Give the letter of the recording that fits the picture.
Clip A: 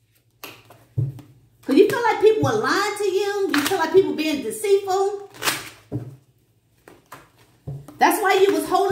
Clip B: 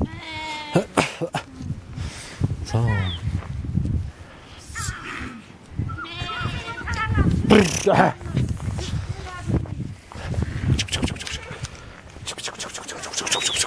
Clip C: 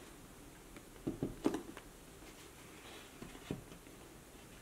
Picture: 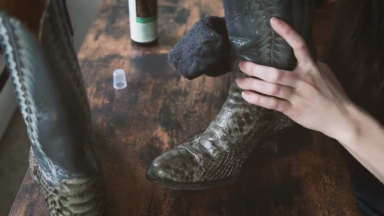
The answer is C